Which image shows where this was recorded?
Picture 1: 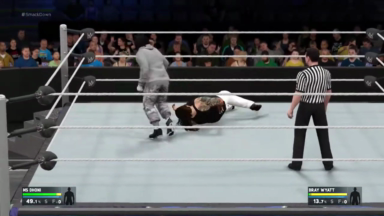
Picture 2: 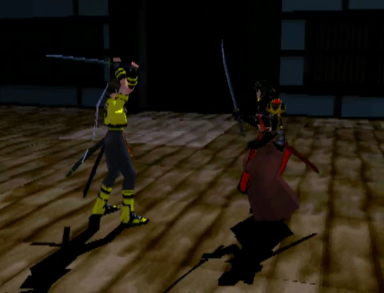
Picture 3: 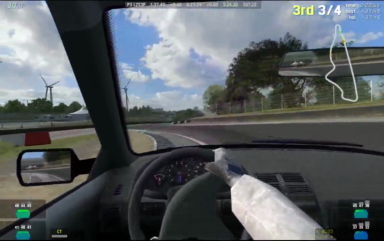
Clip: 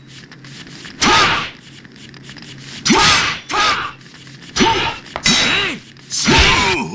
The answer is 2